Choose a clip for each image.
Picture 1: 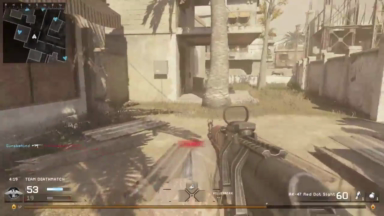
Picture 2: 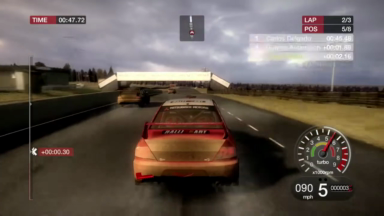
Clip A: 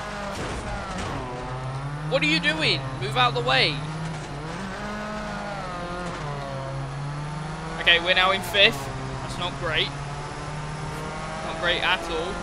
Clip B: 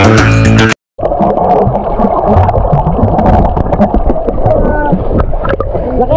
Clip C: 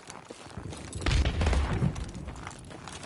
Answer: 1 C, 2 A